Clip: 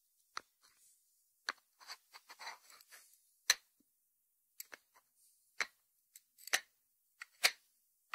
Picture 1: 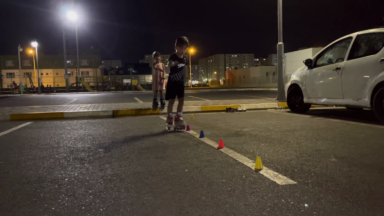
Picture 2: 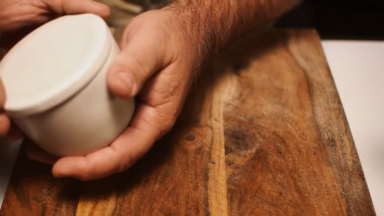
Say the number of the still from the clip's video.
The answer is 2